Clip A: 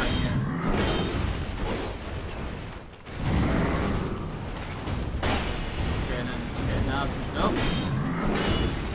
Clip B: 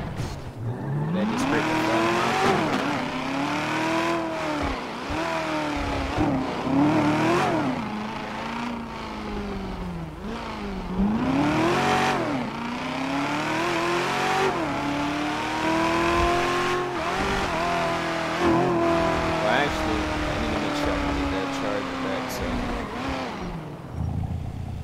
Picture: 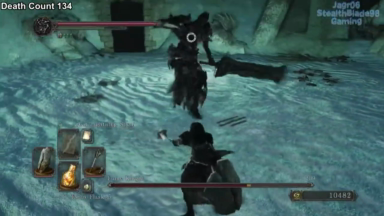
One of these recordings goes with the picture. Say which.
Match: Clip A